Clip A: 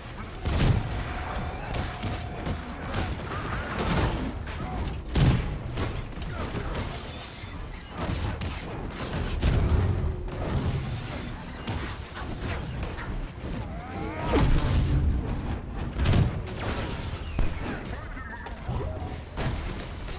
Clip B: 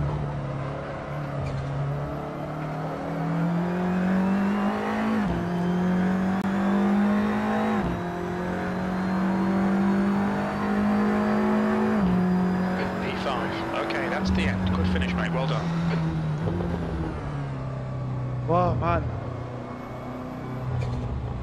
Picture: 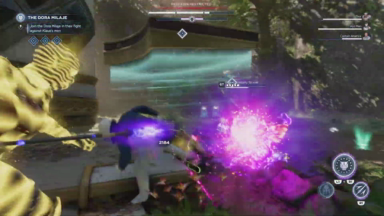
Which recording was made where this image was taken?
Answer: A